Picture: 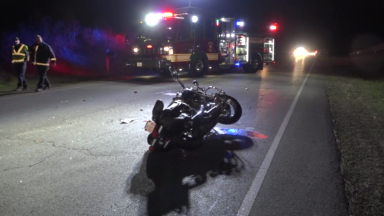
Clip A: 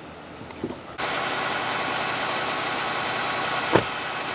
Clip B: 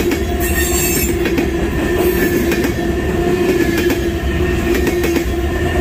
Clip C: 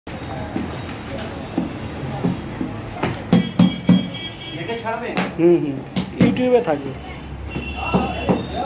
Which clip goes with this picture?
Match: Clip A